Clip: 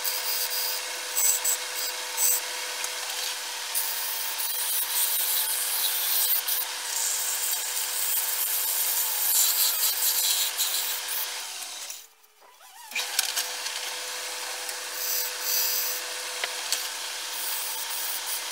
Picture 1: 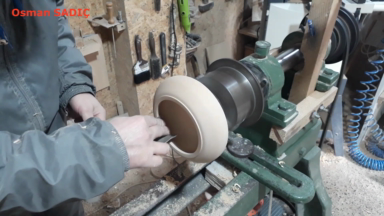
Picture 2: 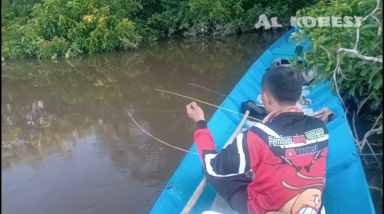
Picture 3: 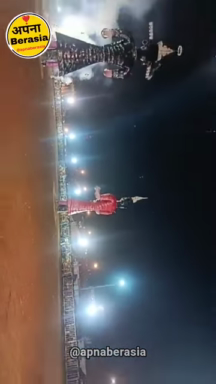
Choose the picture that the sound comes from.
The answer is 1